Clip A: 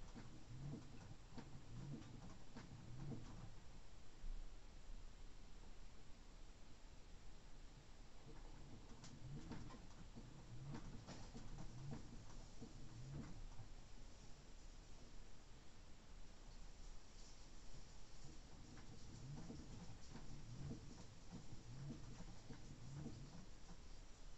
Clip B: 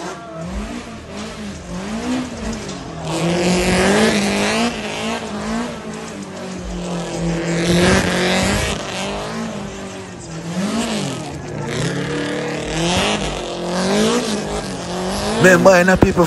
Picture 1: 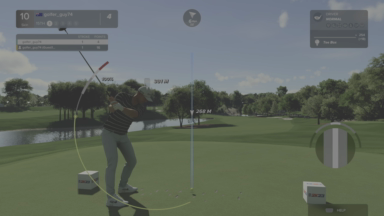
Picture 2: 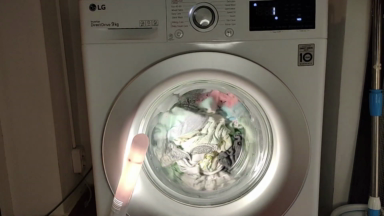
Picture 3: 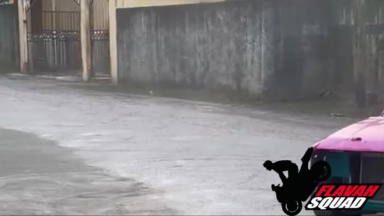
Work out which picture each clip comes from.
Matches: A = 2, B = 3